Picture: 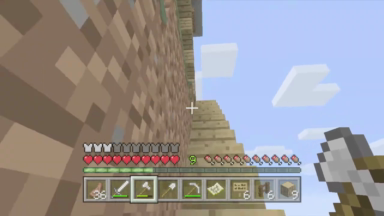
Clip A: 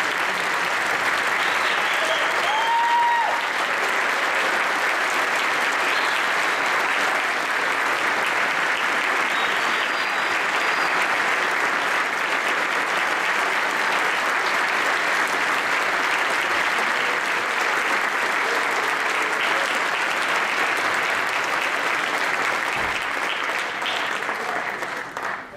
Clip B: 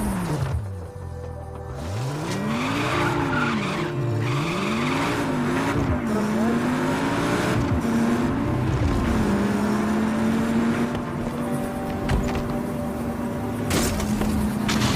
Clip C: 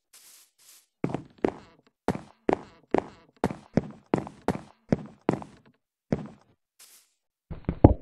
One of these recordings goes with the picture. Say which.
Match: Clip C